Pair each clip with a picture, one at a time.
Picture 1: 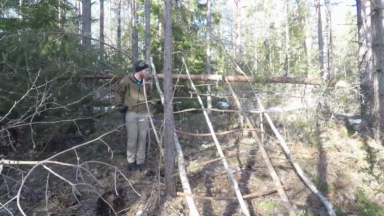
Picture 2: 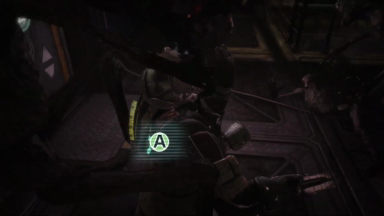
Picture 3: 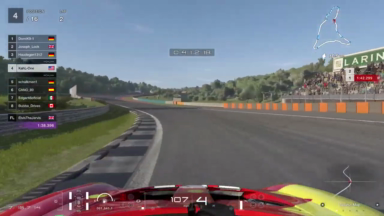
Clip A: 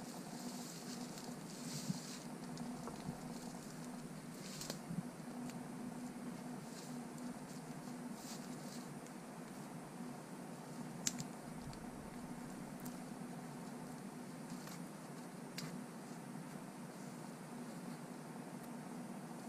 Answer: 1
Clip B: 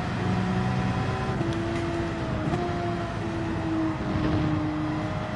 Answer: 3